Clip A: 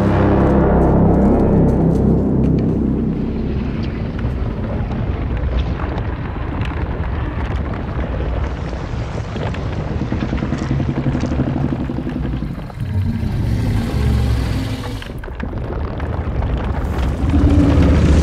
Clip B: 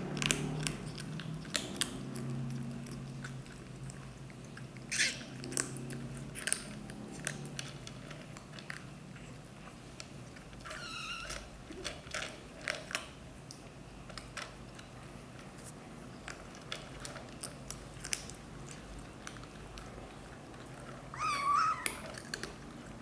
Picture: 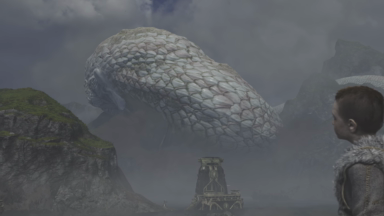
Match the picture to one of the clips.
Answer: A